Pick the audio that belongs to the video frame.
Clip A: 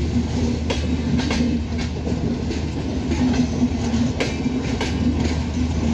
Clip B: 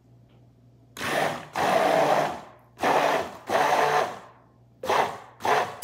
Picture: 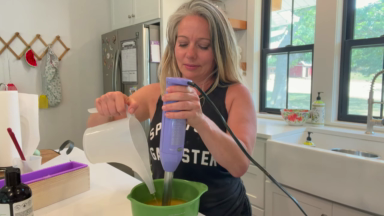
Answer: B